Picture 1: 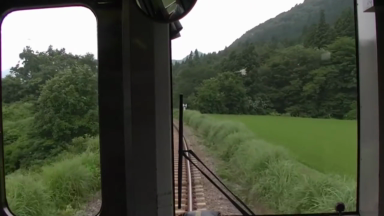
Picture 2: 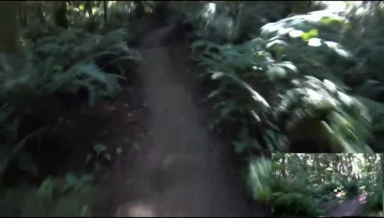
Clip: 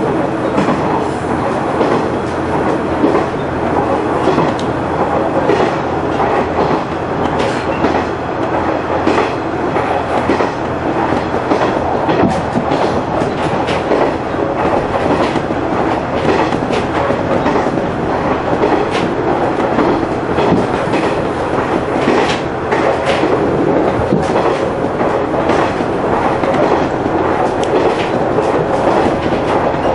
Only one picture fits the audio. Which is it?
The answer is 1